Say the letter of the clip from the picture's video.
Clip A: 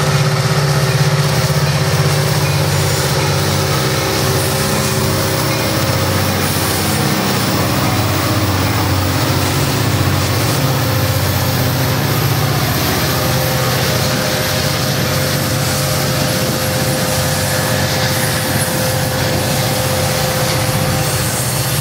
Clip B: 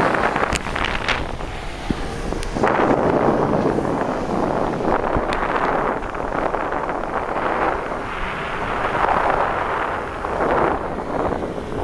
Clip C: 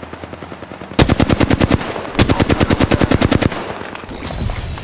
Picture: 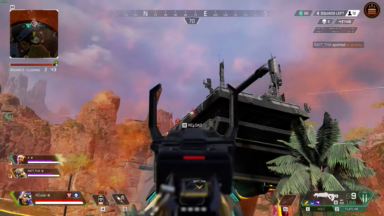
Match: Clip C